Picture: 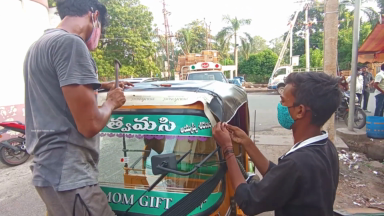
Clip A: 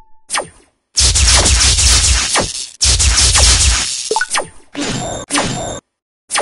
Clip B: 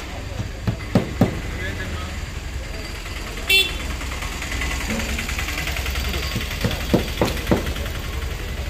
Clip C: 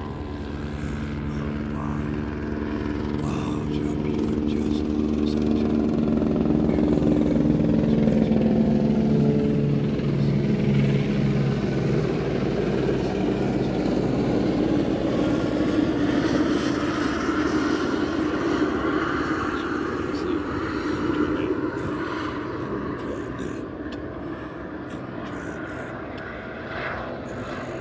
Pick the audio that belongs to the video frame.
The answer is B